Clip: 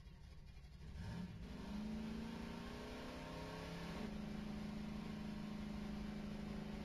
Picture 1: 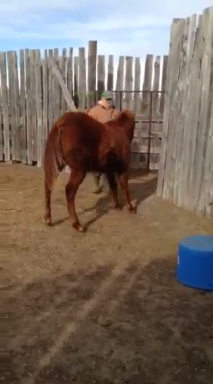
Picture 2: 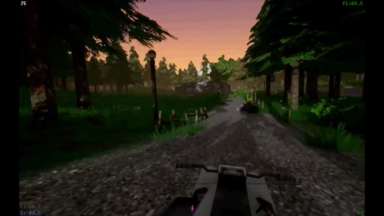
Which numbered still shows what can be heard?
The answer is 2